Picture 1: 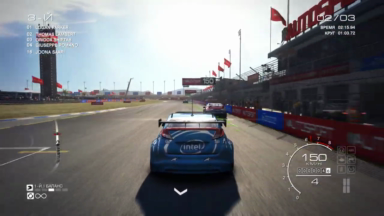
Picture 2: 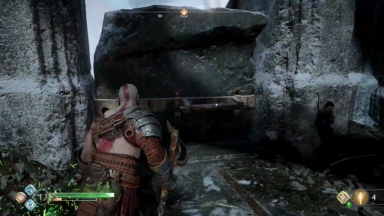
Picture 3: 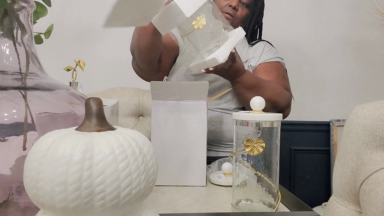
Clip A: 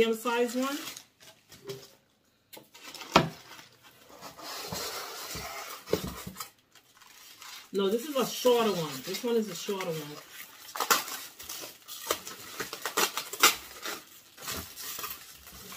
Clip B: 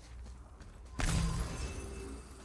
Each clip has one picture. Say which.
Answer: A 3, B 2